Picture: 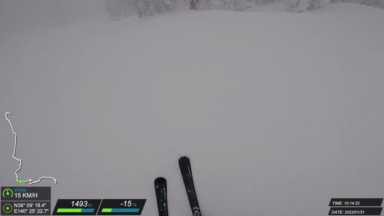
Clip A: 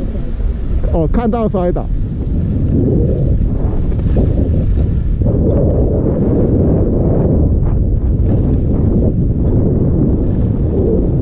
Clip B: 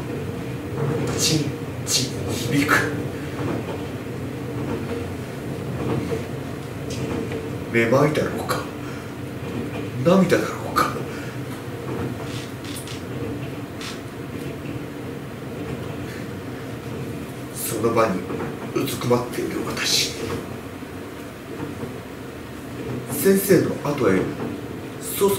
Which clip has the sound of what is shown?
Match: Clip A